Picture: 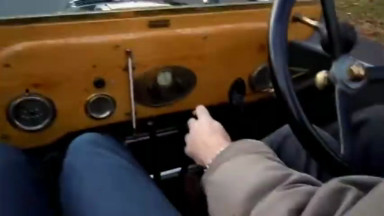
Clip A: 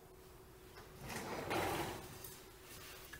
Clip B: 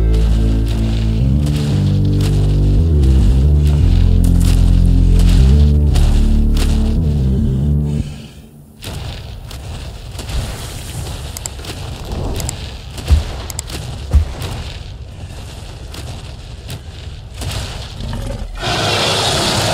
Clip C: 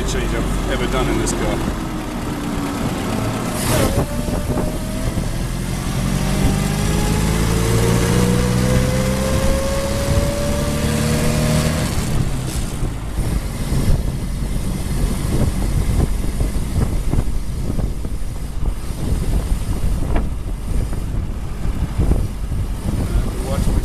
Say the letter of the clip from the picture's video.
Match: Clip C